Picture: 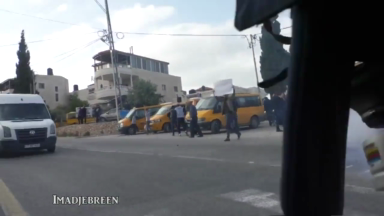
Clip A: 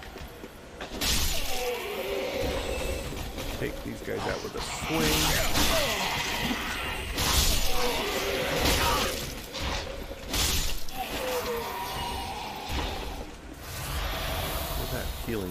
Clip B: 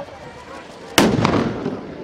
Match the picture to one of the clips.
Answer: B